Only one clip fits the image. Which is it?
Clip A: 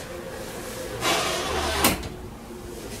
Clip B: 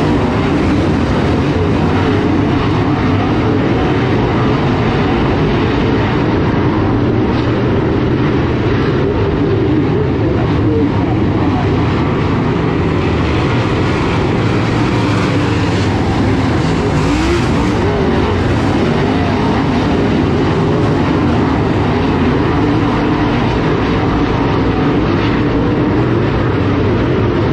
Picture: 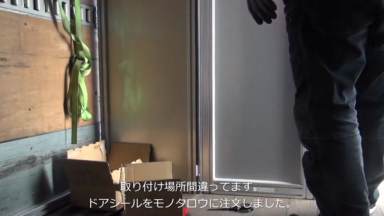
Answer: A